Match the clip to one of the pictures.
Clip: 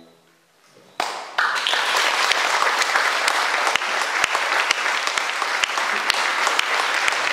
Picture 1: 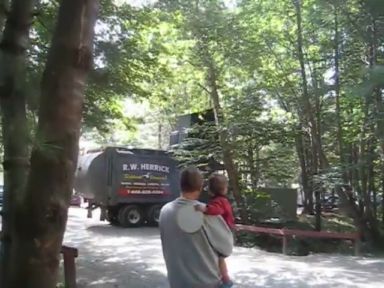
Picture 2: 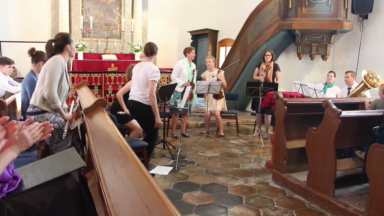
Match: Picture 2